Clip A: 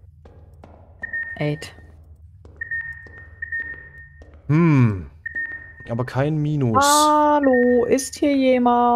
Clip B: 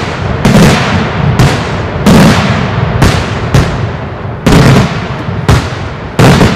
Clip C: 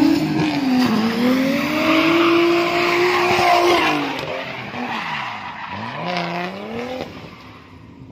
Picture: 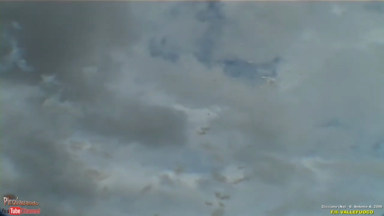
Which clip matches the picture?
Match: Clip B